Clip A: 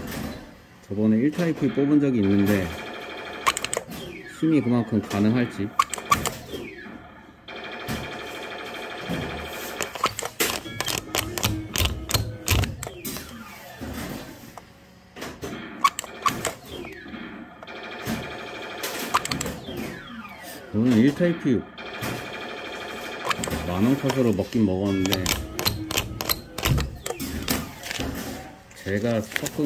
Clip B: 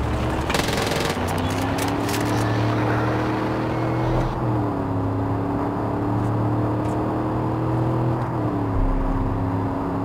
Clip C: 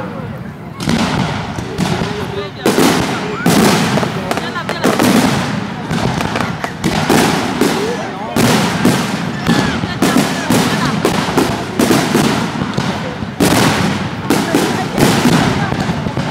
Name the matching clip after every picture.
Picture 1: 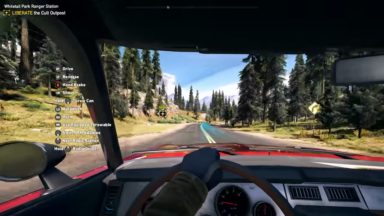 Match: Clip B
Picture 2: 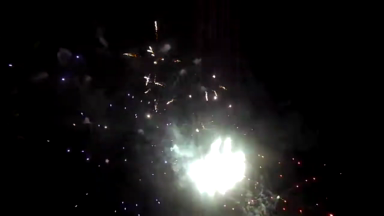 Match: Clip C